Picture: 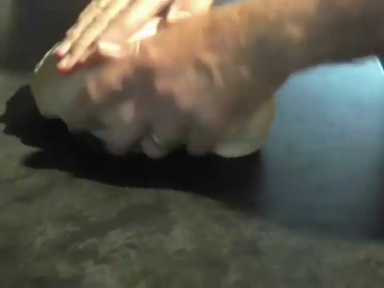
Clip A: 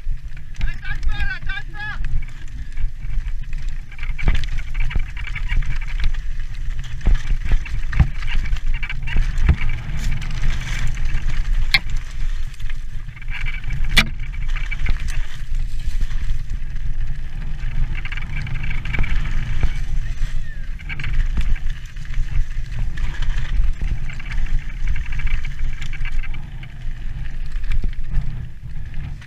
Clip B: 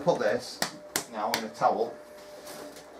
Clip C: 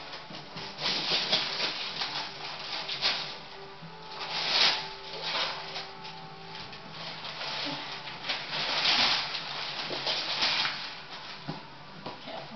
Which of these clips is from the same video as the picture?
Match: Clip B